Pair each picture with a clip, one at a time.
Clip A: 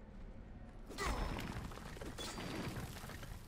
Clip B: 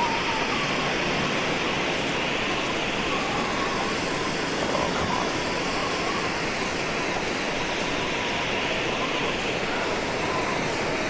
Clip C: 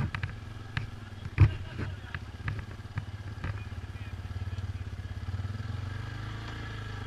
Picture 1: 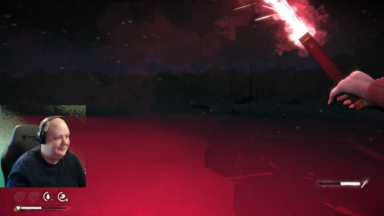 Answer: B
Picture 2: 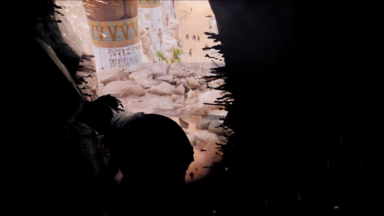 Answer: A